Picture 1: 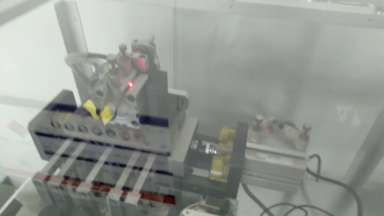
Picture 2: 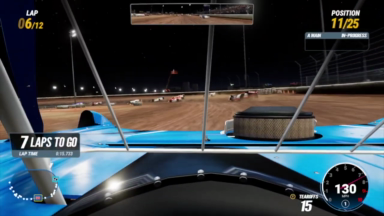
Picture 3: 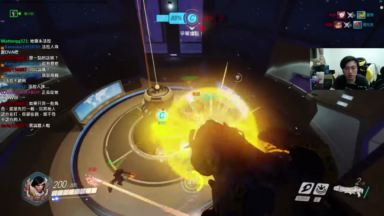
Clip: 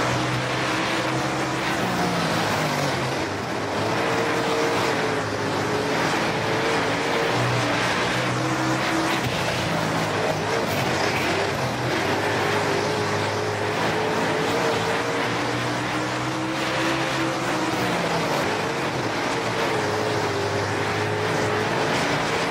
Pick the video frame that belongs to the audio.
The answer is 2